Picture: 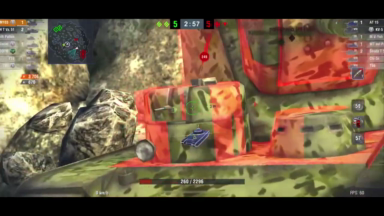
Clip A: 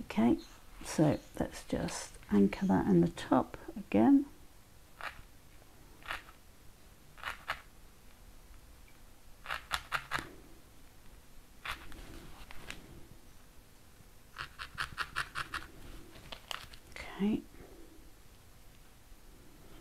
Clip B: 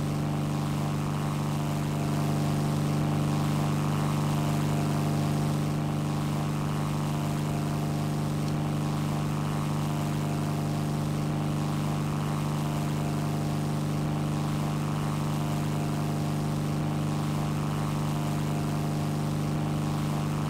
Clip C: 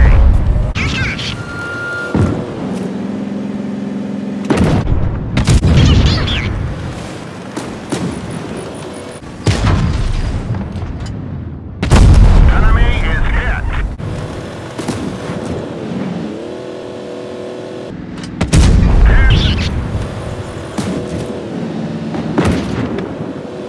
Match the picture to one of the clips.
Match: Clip C